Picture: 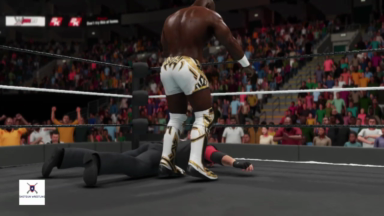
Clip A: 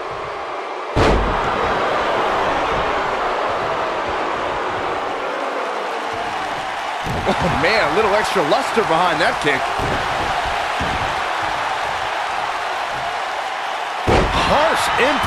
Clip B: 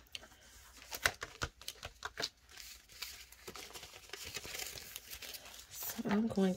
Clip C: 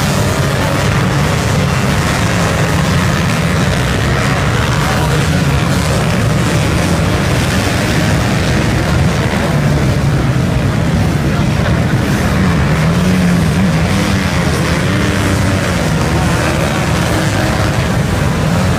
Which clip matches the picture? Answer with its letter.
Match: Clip A